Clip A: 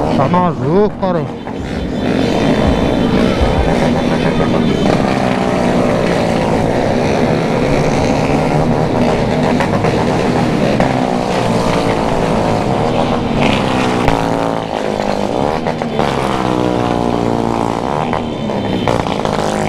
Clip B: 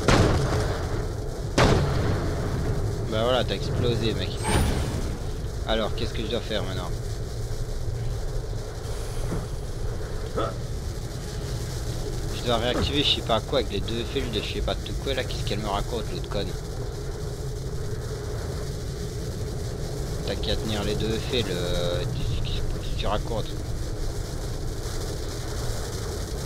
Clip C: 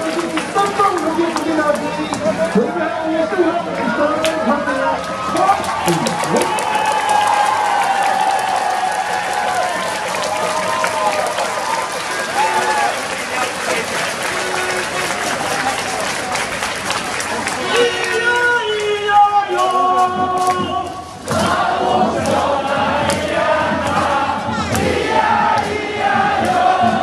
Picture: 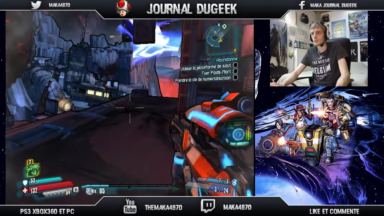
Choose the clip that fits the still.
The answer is B